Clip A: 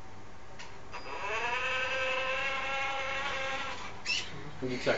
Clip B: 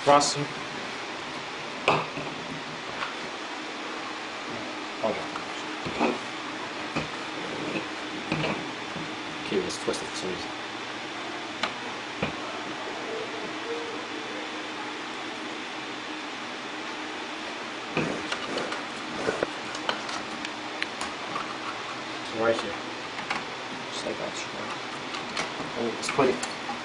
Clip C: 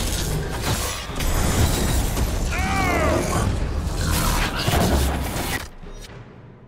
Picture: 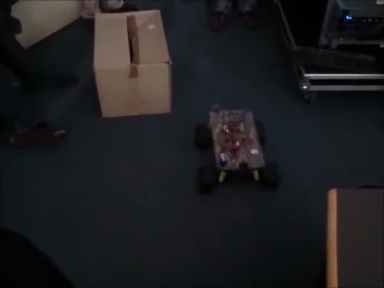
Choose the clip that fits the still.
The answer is A